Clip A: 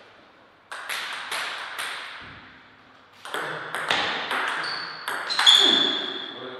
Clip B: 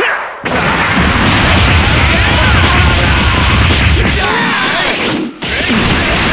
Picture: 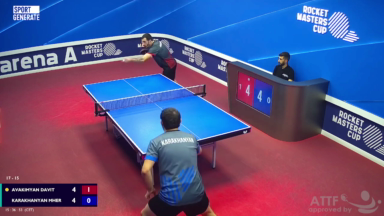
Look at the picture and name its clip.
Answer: A